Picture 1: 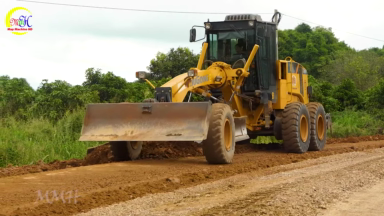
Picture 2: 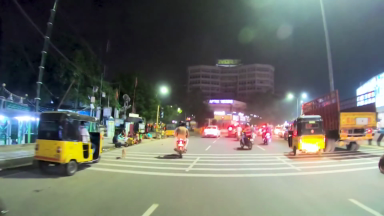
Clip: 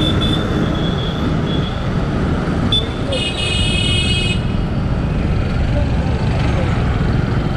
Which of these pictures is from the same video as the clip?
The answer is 2